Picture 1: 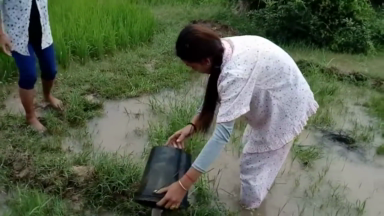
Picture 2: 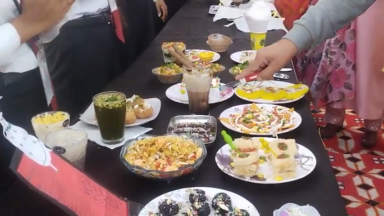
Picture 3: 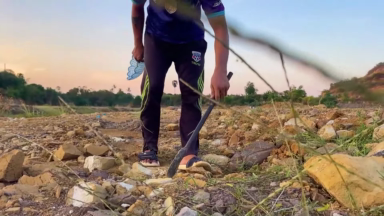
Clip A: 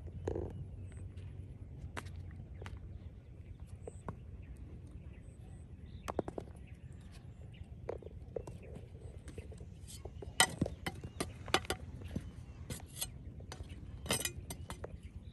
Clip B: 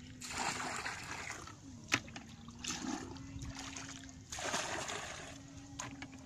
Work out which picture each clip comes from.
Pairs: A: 3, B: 1